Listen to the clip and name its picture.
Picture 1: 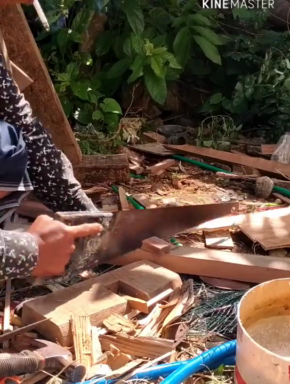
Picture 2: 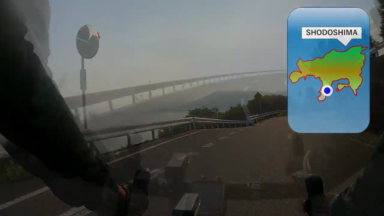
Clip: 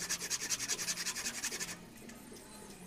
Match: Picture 1